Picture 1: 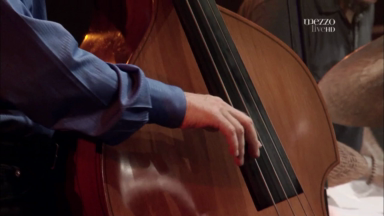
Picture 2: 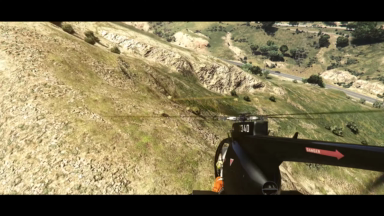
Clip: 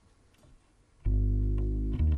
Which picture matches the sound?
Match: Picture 1